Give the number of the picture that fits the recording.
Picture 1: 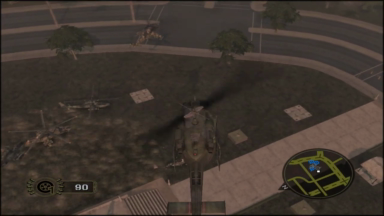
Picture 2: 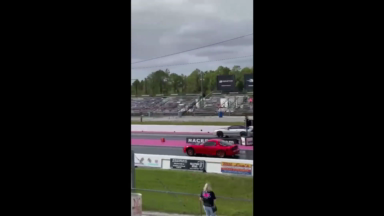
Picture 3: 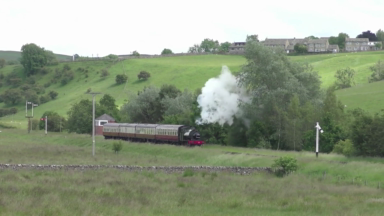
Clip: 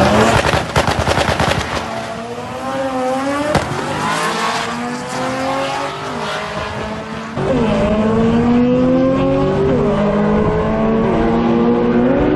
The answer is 2